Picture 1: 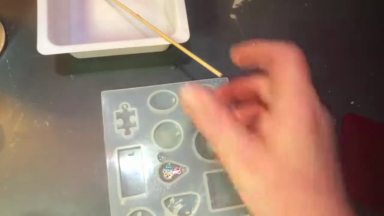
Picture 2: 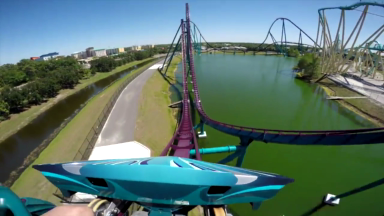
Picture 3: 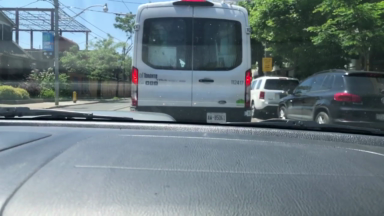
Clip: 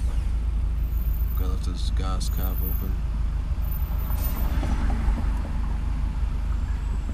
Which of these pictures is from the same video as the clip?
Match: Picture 3